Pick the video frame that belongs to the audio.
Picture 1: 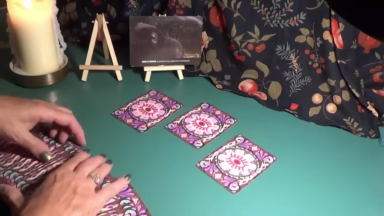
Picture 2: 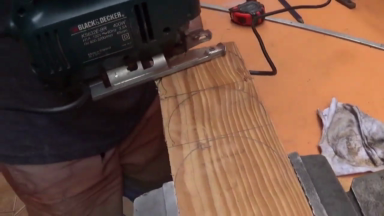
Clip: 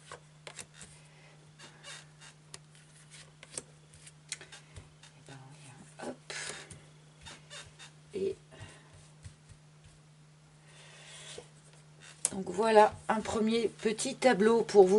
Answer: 1